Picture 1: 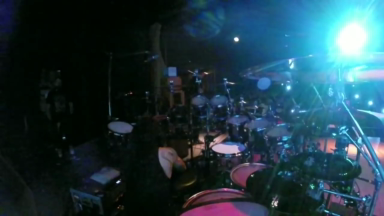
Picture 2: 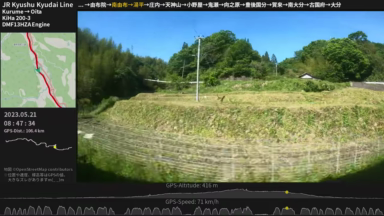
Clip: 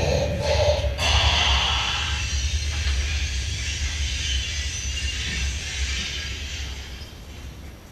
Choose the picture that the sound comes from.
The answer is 1